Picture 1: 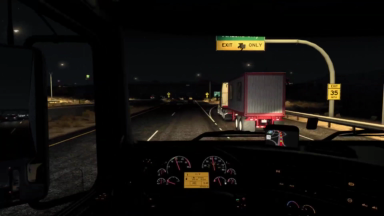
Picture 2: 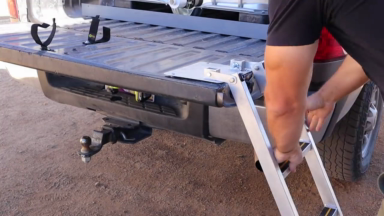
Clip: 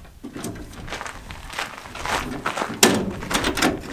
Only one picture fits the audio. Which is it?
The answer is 2